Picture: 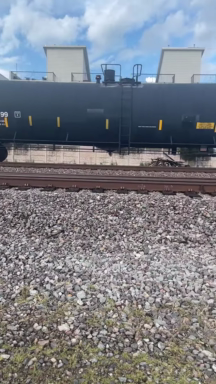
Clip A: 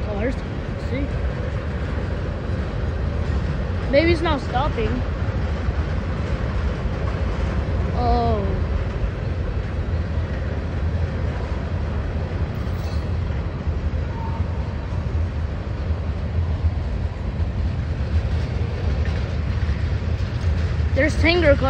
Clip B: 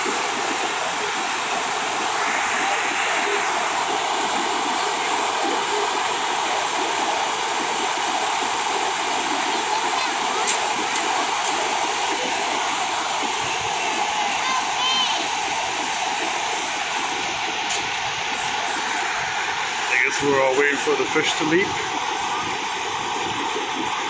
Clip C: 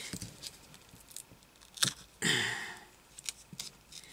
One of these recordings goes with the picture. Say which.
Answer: A